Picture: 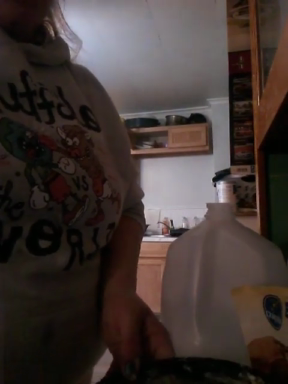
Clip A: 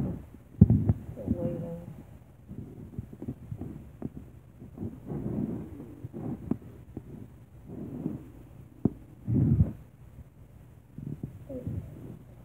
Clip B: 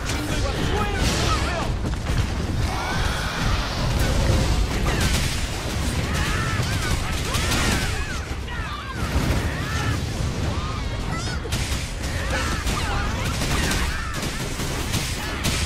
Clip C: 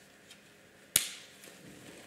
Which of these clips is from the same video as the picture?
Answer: A